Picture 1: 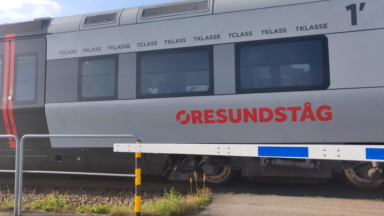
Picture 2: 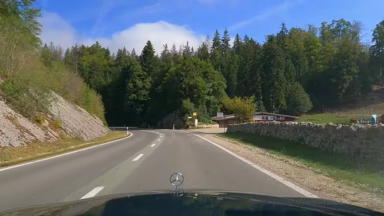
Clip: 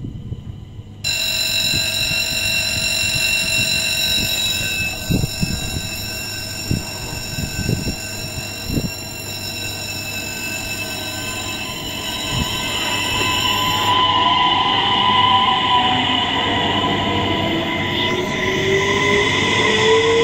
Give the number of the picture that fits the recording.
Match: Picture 1